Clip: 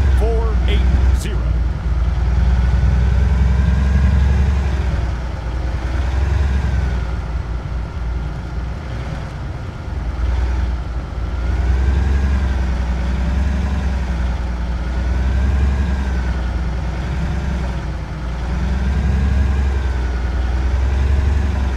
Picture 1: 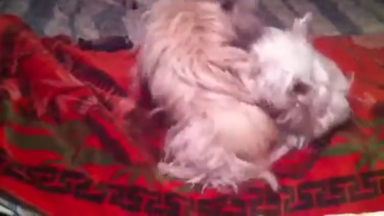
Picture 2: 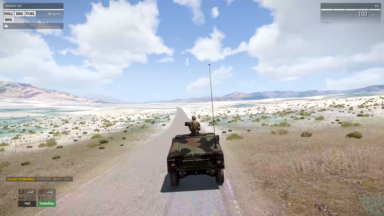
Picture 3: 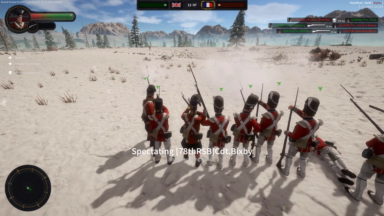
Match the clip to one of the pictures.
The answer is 2